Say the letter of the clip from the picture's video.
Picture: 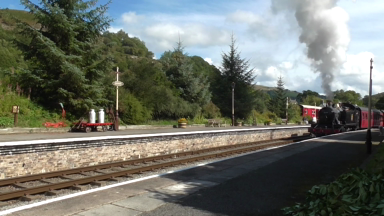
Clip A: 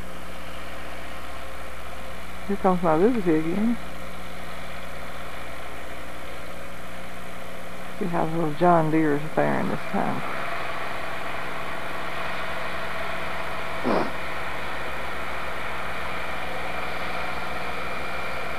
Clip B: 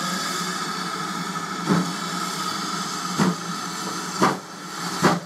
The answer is B